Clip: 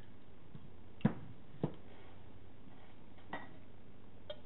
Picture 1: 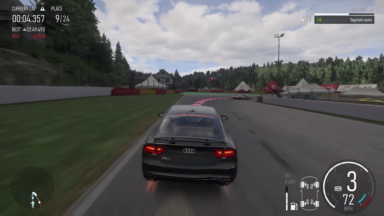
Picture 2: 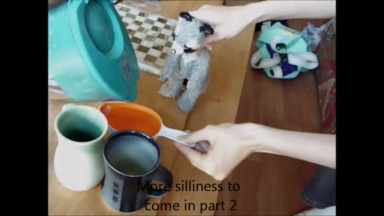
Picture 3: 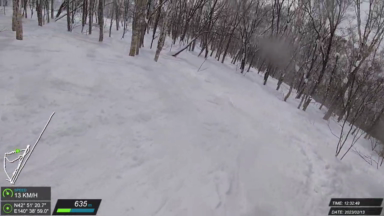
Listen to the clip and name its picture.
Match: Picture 2